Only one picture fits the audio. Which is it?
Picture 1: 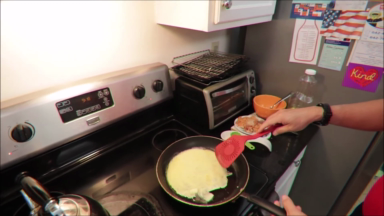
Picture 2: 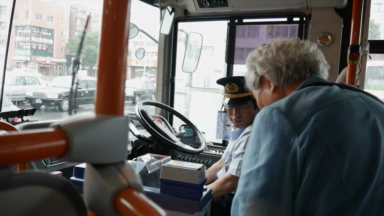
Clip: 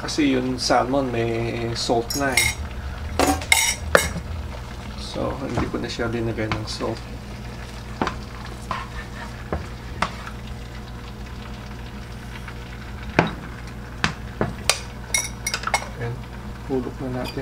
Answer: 1